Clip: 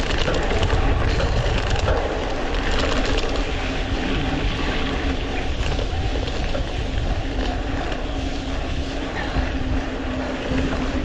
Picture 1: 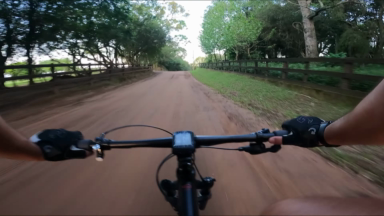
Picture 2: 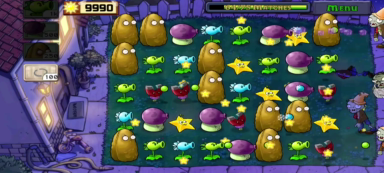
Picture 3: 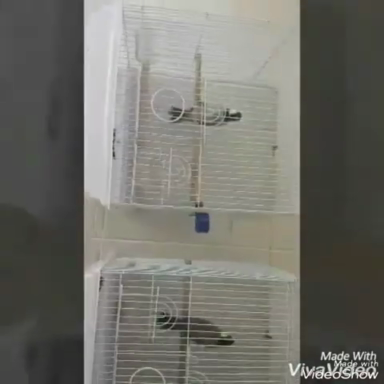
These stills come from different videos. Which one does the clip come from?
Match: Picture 1